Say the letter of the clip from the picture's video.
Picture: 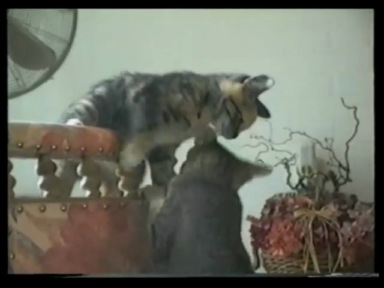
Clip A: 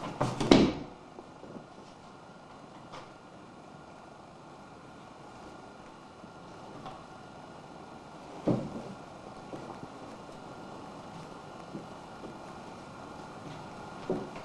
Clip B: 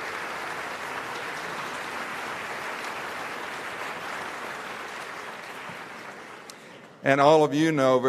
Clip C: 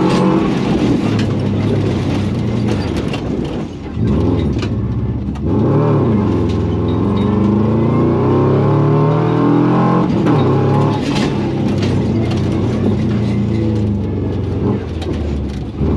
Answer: A